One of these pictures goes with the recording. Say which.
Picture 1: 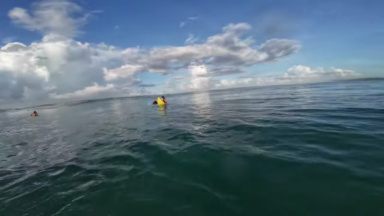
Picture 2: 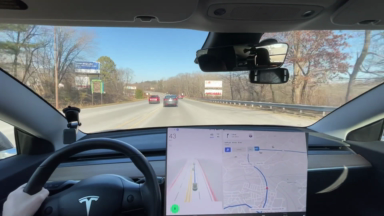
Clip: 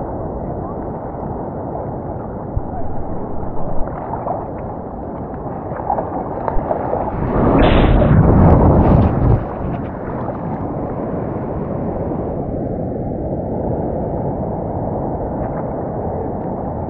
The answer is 1